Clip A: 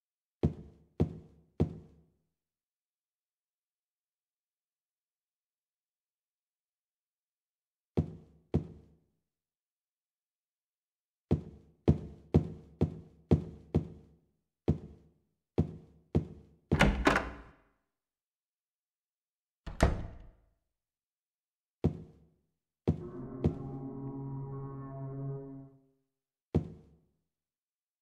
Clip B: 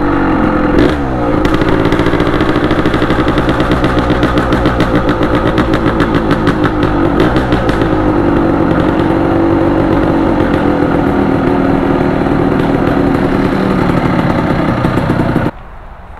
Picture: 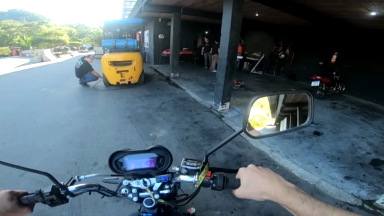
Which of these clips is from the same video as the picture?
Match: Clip B